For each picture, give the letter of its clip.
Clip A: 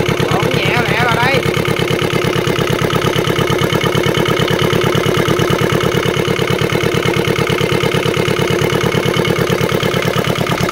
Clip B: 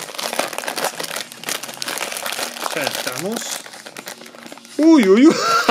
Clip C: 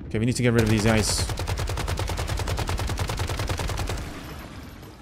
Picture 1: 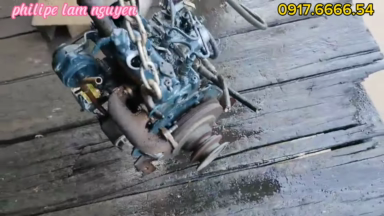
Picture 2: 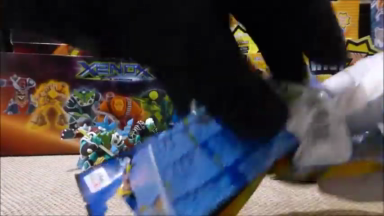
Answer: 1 A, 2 B